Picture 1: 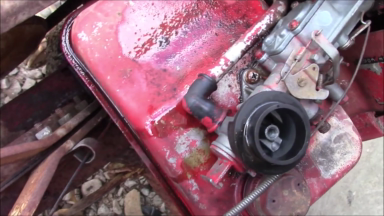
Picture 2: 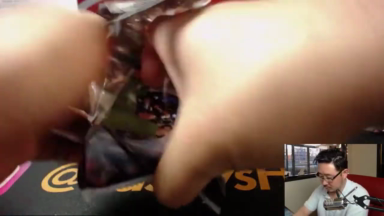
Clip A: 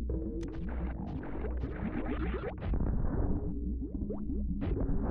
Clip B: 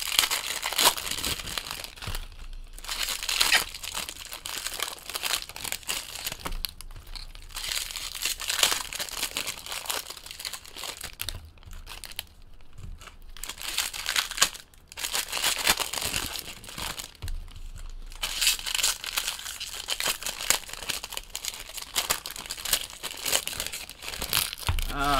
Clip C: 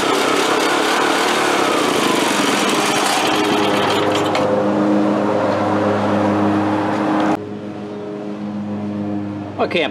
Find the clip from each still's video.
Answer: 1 C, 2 B